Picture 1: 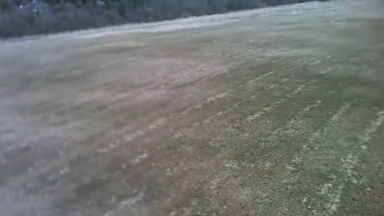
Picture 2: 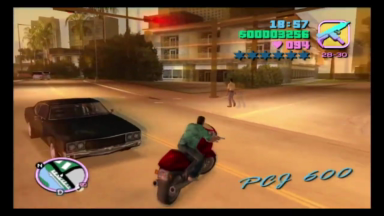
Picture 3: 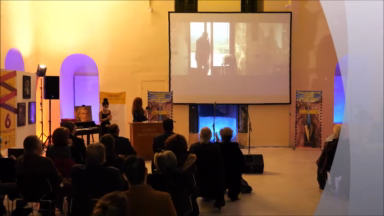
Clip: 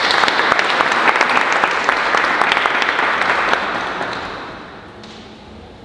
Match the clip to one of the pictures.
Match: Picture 3